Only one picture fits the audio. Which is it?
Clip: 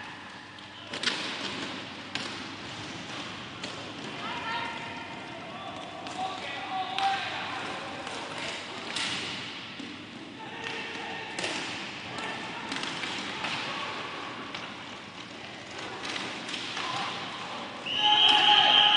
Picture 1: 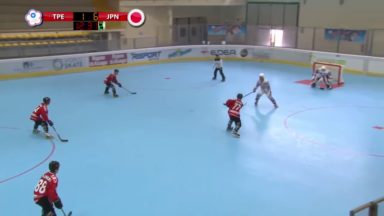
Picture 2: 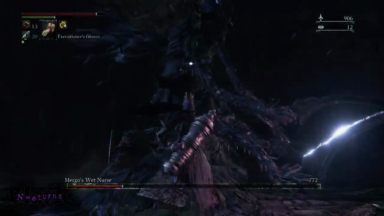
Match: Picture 1